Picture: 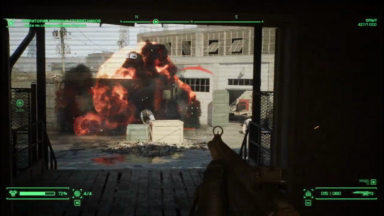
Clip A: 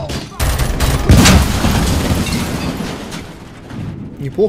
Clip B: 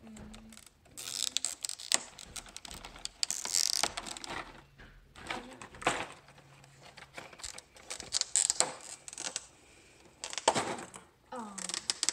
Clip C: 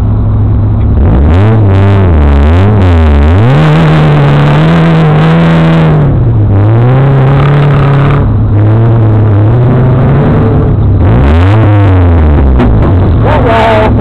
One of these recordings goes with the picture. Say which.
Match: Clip A